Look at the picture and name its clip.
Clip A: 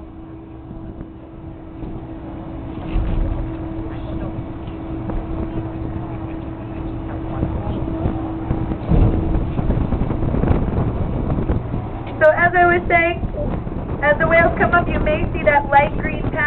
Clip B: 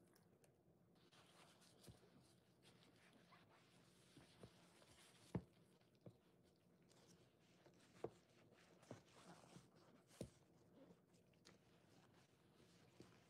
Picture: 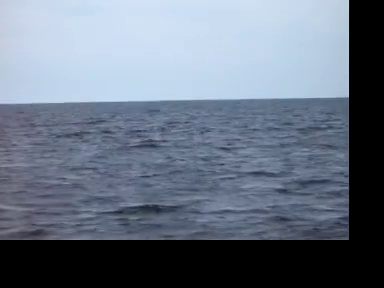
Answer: A